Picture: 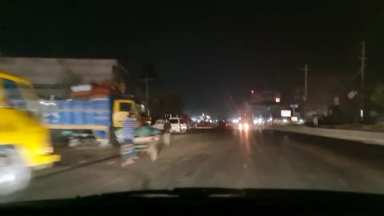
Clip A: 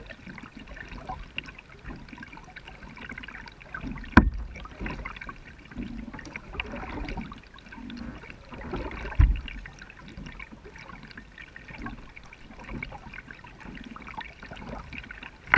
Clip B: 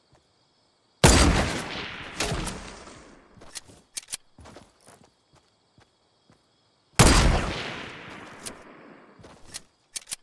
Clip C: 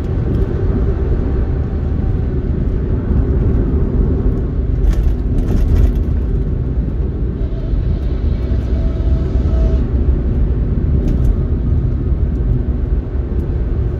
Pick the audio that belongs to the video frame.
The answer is C